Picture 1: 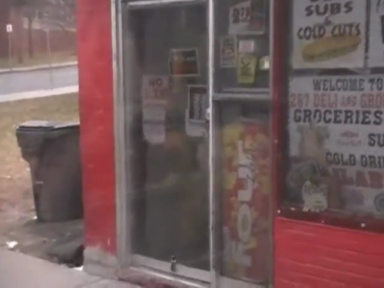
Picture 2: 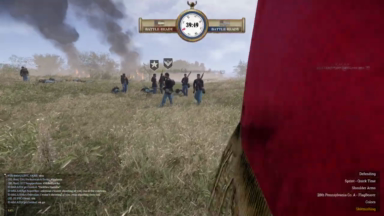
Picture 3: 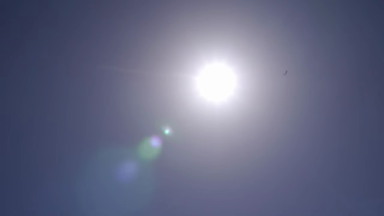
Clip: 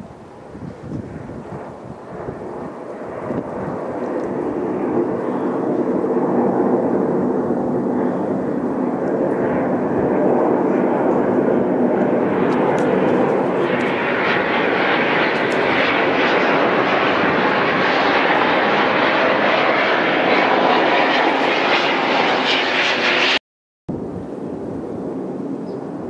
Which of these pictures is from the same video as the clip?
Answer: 3